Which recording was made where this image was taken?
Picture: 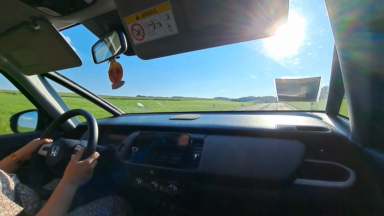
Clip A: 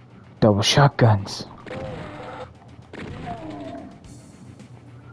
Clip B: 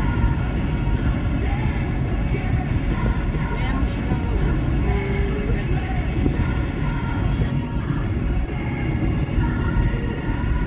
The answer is B